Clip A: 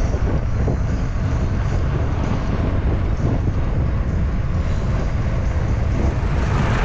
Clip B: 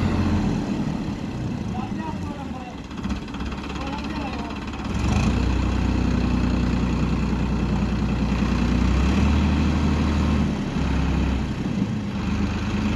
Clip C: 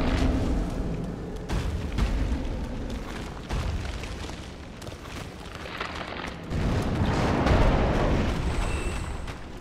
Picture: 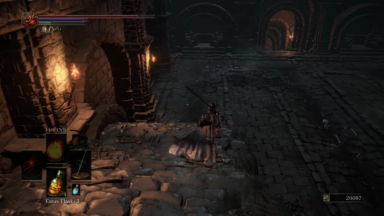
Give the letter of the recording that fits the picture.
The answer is C